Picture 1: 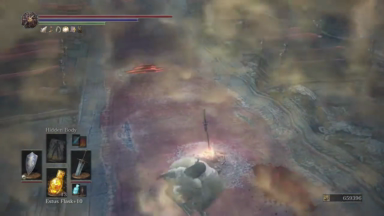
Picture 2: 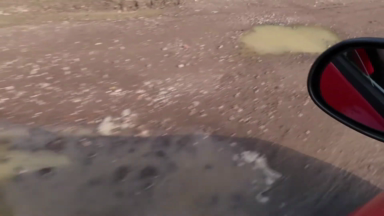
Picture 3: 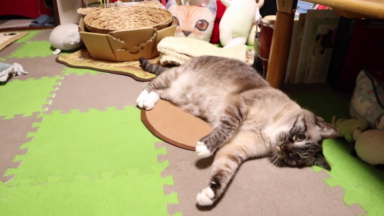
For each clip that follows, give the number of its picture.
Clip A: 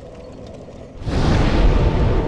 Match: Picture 1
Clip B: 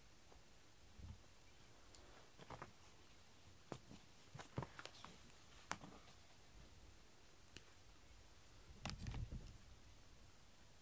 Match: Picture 3